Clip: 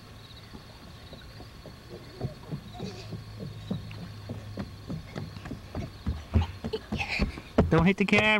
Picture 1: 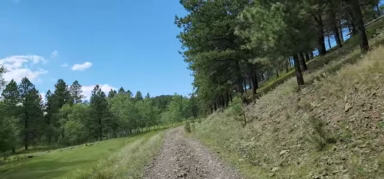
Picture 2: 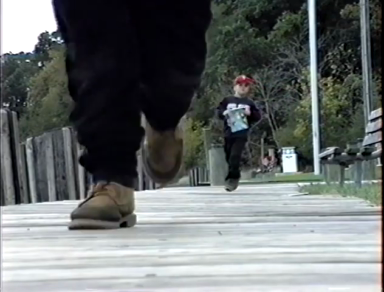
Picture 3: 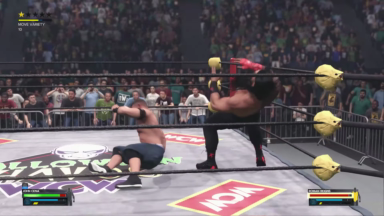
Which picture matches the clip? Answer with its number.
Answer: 2